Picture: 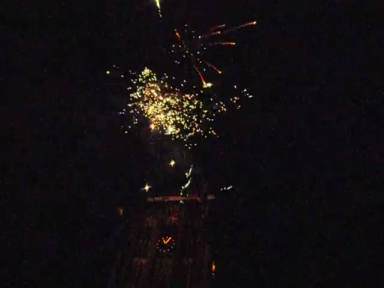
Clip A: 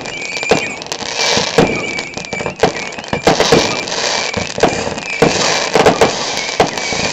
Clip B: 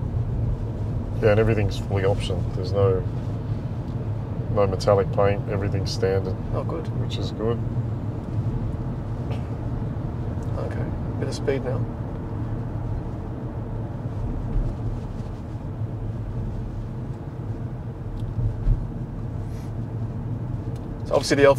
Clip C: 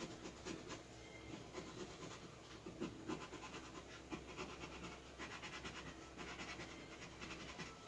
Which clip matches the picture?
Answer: A